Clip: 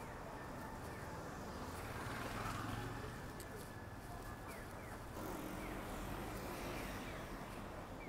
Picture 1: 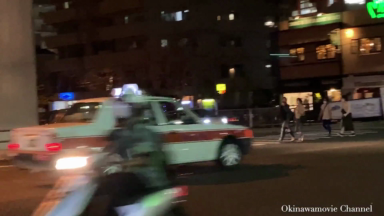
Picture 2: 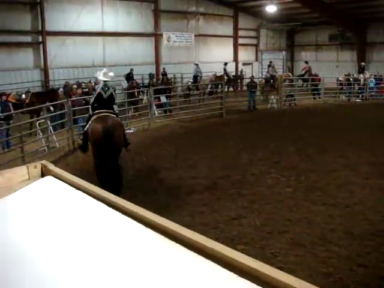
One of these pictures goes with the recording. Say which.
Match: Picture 1